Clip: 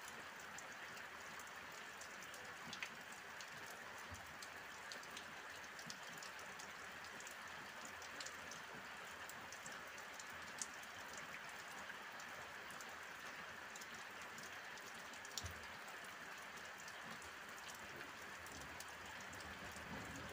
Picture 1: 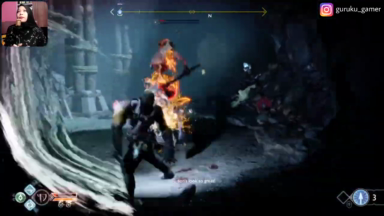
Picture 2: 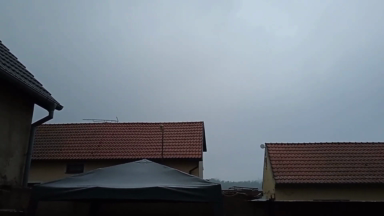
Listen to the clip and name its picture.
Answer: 2